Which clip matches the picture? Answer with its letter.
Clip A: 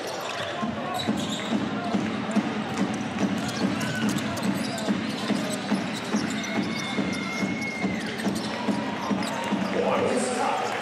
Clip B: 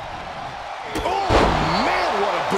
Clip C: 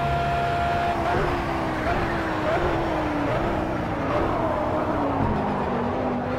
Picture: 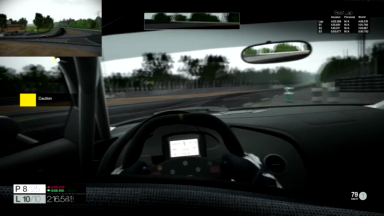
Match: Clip C